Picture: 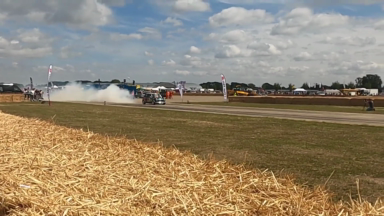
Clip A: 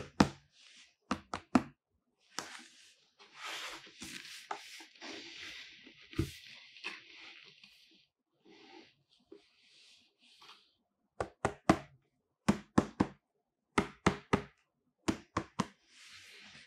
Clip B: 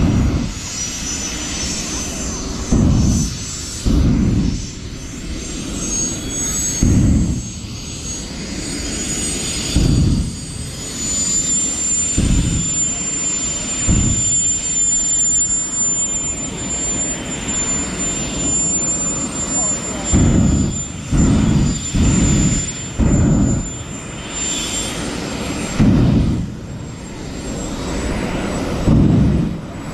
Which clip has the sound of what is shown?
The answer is B